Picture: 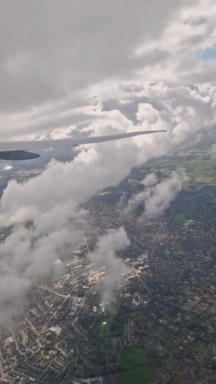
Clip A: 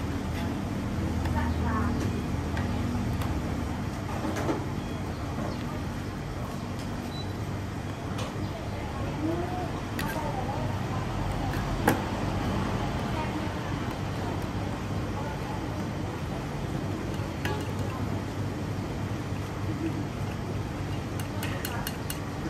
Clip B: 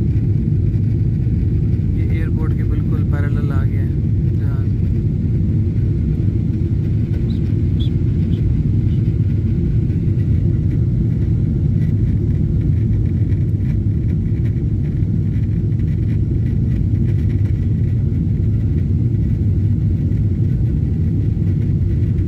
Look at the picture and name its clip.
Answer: B